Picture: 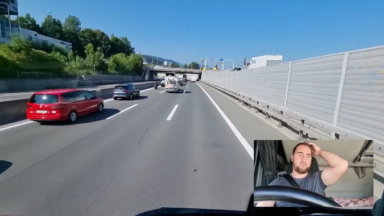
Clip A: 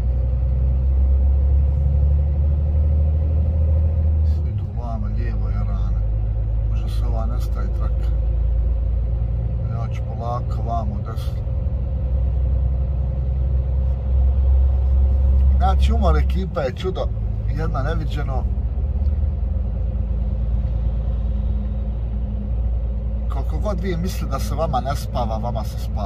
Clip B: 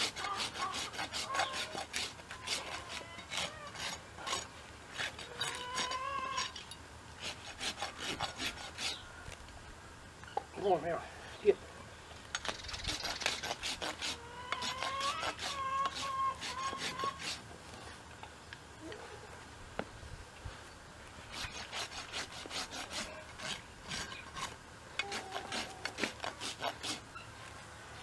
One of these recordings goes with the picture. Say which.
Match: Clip A